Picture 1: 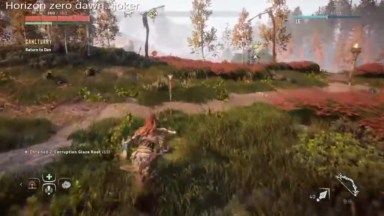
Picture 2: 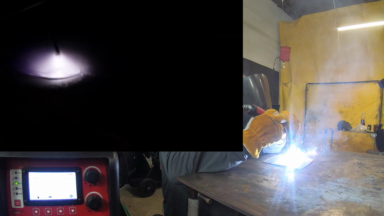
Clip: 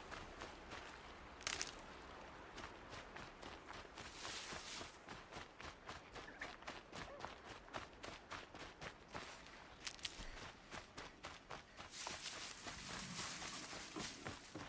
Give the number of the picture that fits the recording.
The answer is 1